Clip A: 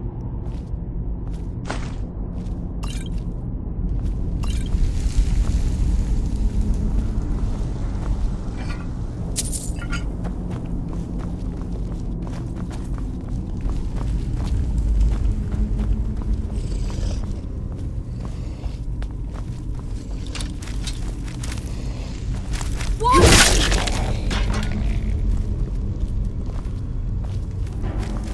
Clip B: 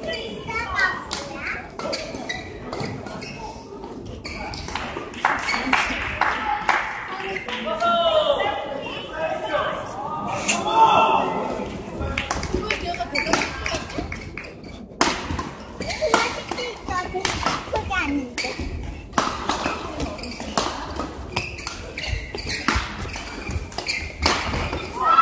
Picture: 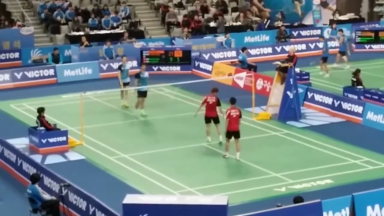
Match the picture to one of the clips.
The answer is B